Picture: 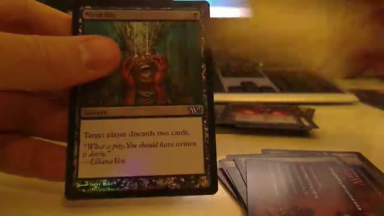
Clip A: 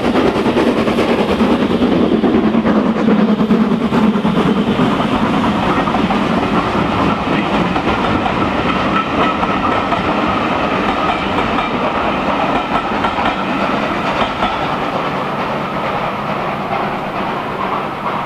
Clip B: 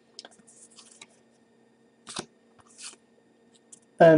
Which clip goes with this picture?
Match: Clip B